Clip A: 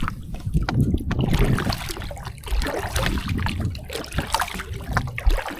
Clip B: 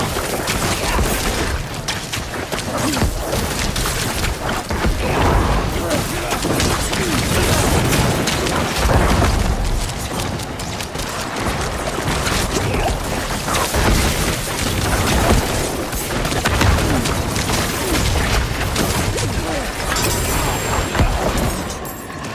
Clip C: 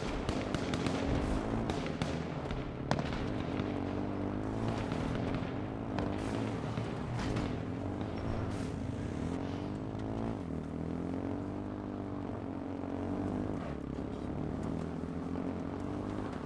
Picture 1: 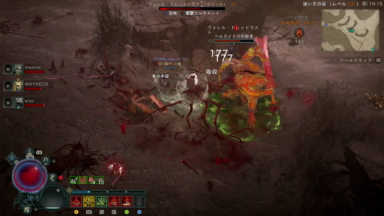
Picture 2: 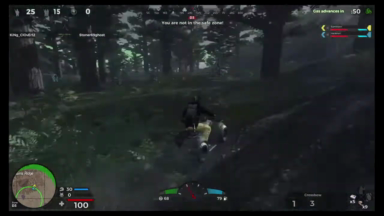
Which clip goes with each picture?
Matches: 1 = B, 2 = C